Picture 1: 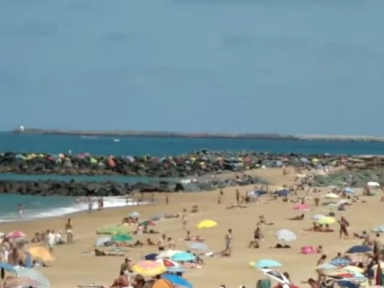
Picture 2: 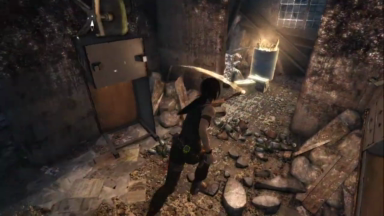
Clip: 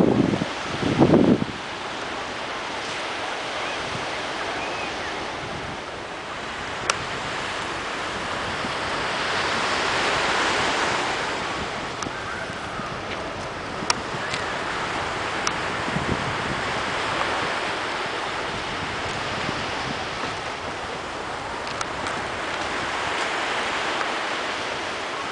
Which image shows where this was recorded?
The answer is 1